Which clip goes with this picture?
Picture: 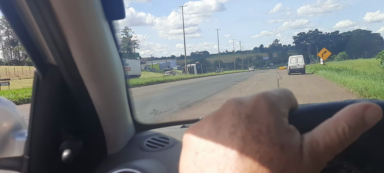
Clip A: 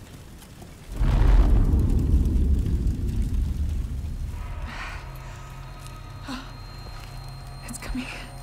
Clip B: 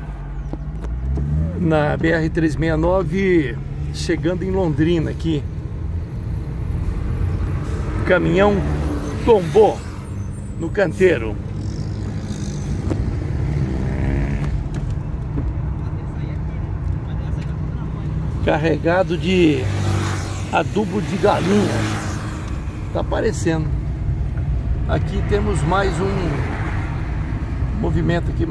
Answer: B